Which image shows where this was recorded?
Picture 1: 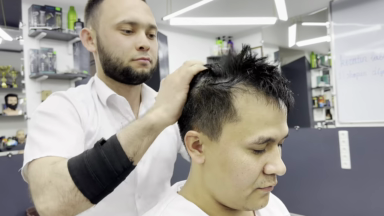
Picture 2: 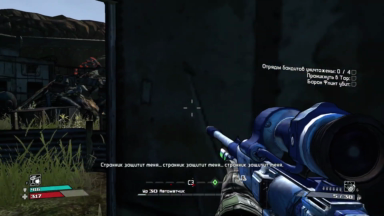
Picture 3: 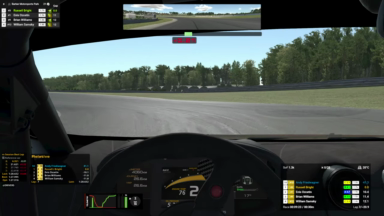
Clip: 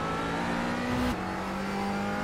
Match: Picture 3